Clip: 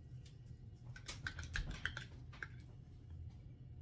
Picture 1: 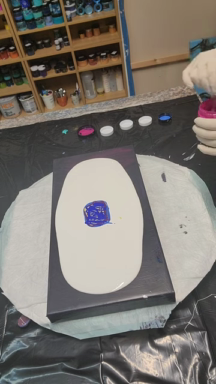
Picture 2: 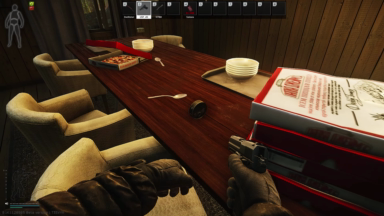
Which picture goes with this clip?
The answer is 1